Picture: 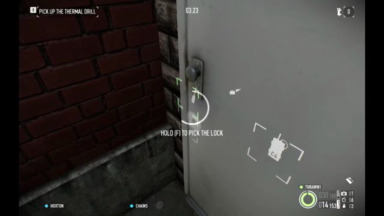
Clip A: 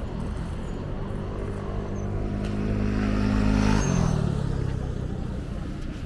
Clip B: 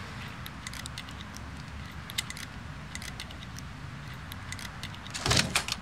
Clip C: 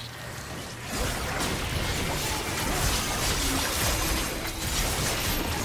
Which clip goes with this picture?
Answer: B